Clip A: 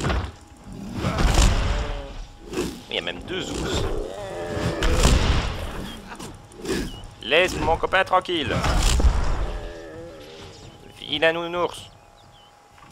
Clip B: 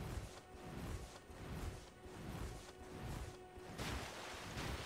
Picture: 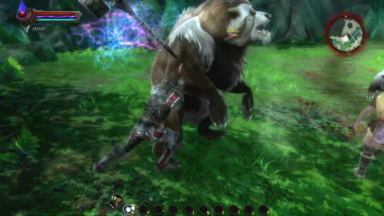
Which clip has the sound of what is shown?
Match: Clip A